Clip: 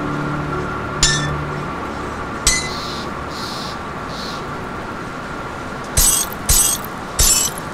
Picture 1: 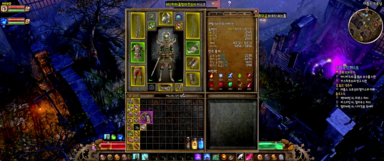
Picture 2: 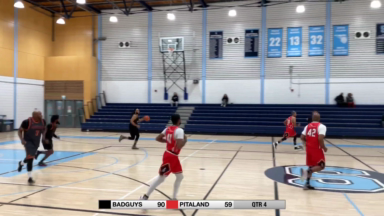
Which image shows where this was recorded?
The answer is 1